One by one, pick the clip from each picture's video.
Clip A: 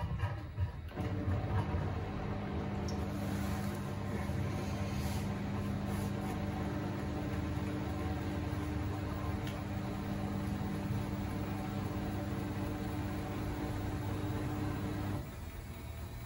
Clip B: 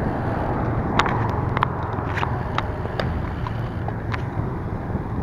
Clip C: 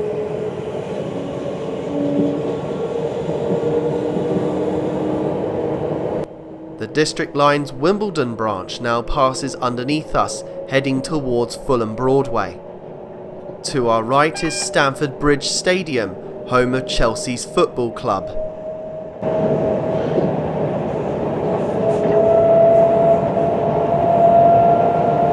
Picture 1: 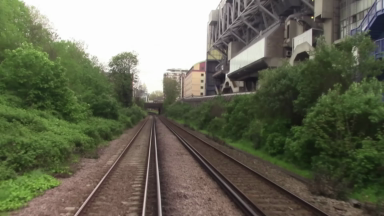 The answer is C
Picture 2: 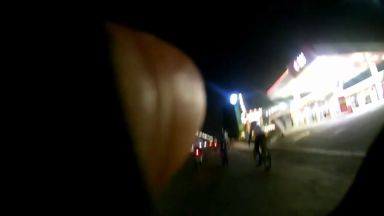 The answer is B